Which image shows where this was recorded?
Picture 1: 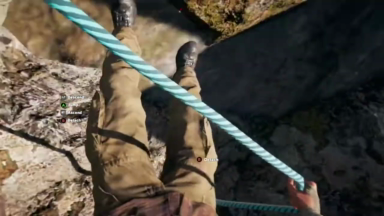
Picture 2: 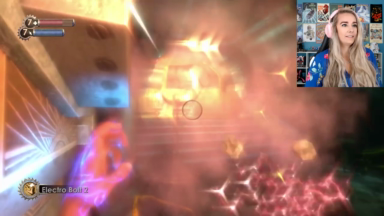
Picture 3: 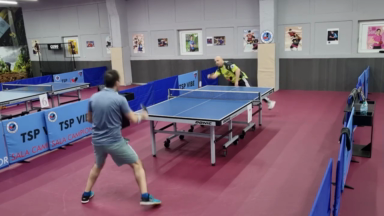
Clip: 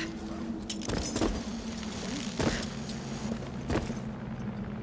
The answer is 1